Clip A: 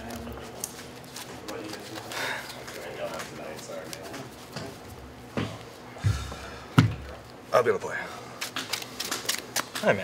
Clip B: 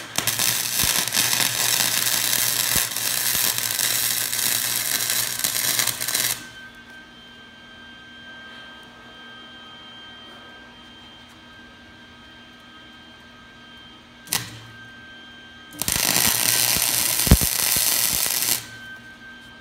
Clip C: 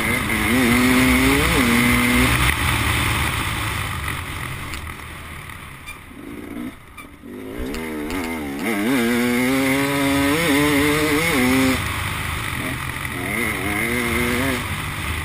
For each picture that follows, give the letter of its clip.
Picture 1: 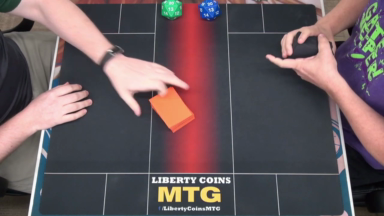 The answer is A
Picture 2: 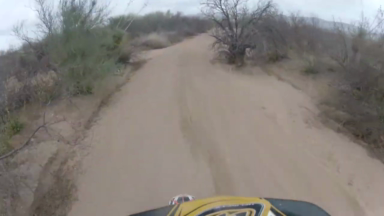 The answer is C